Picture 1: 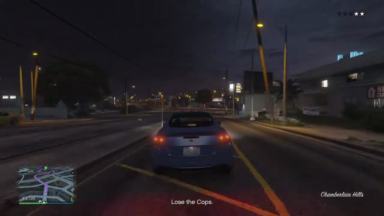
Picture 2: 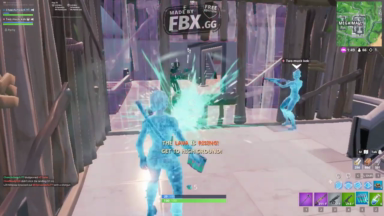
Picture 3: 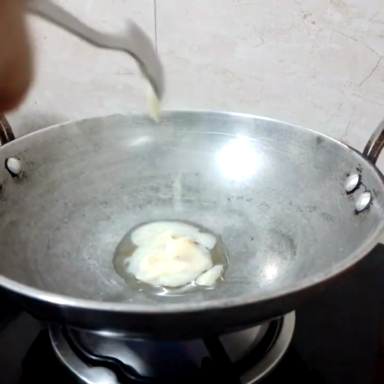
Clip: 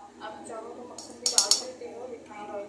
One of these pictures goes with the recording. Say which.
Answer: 3